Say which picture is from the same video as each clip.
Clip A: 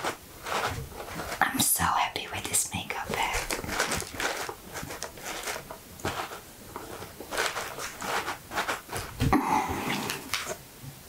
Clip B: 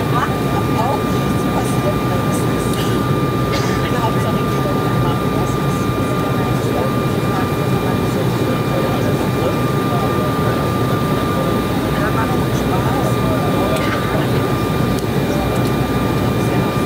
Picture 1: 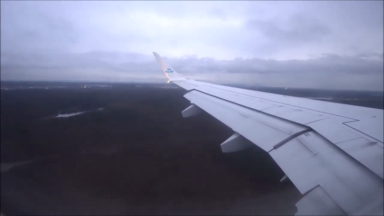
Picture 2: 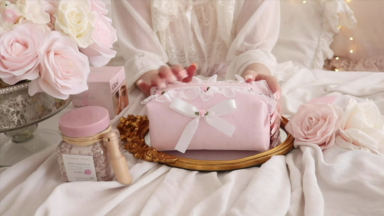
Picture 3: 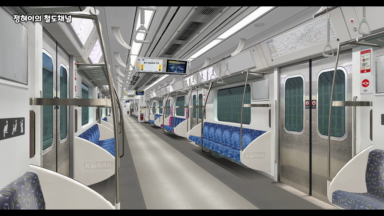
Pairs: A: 2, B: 1